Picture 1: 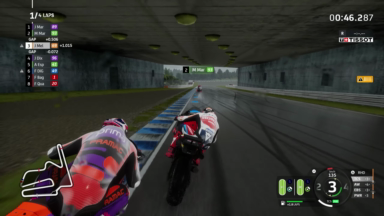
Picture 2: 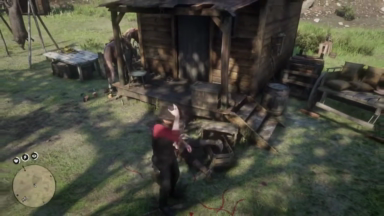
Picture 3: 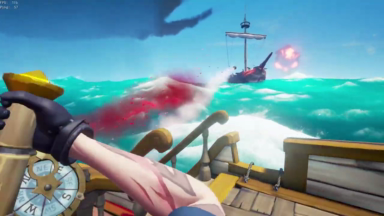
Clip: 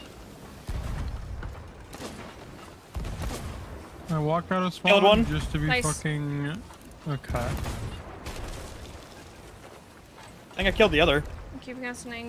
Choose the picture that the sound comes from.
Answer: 3